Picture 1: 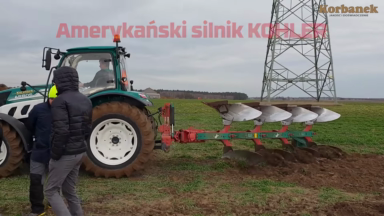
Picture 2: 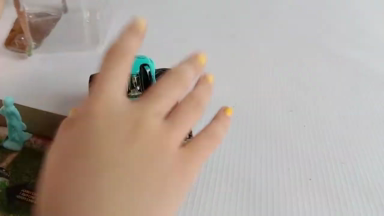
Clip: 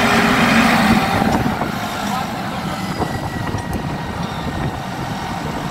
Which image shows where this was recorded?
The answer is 1